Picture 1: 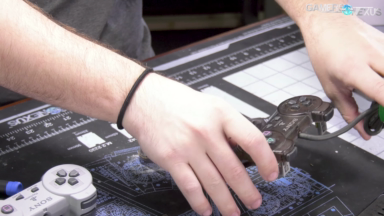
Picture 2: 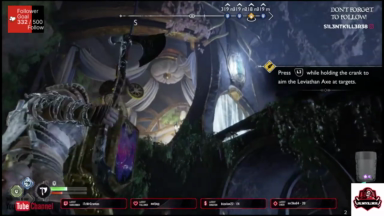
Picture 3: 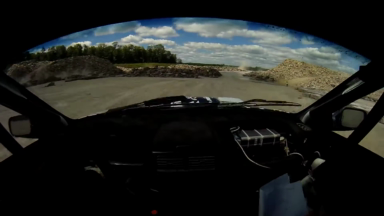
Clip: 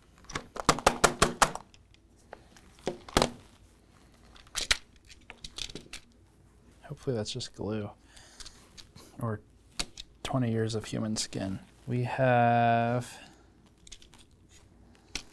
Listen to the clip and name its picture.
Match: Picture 1